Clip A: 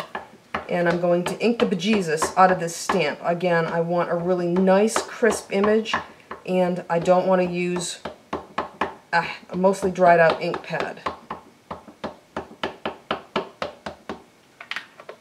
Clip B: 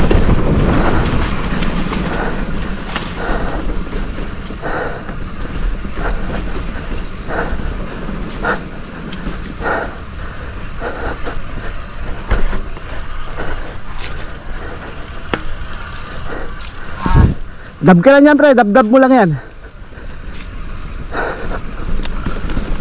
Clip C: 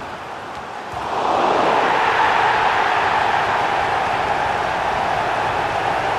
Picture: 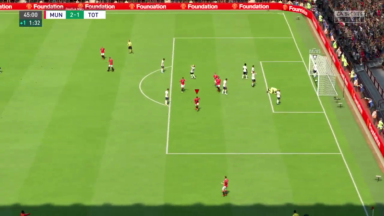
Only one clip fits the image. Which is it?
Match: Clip C